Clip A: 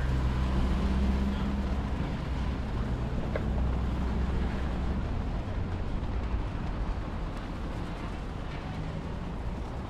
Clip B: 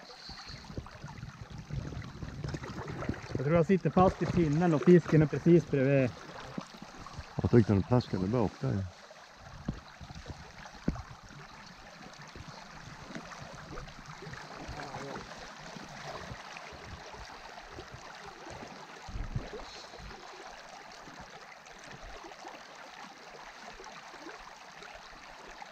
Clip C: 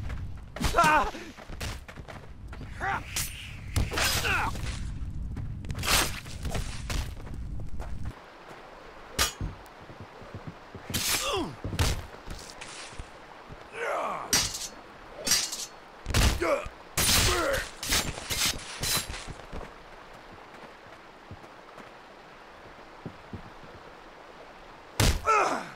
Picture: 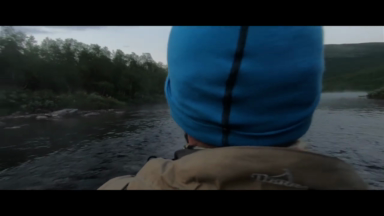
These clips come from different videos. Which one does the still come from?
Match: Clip B